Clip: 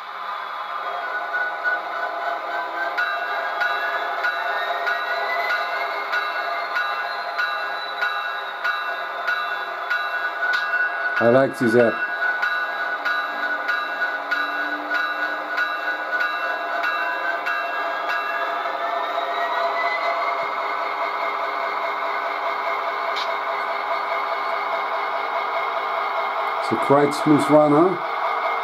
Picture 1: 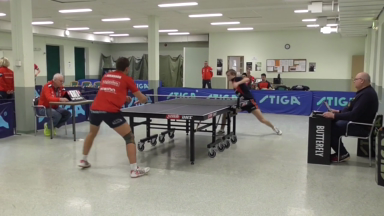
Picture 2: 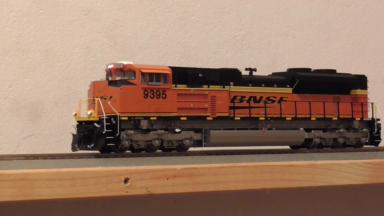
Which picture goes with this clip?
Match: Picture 2